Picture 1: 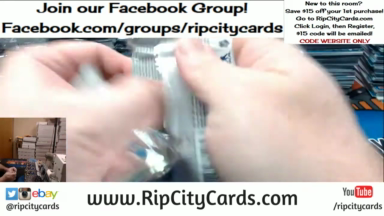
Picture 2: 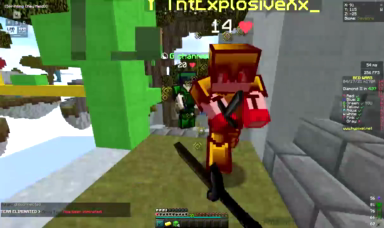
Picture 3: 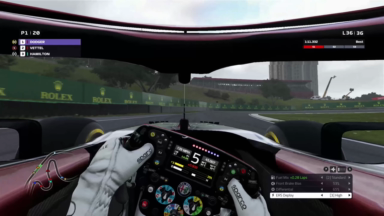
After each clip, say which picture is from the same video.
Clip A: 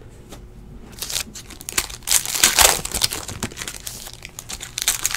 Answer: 1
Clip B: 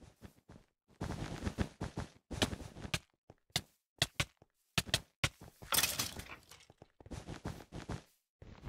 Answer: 2